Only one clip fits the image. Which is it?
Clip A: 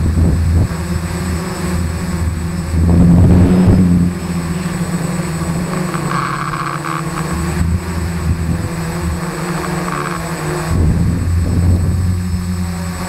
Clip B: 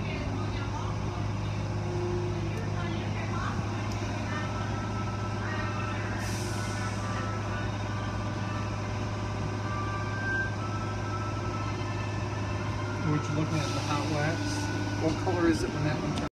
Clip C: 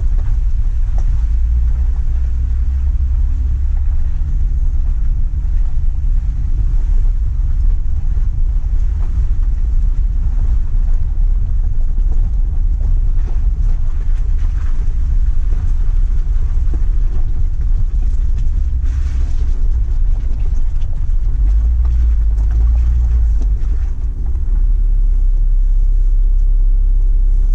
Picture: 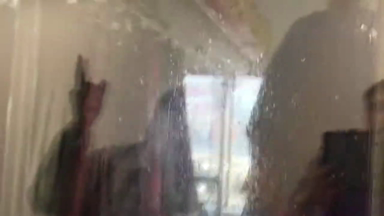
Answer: B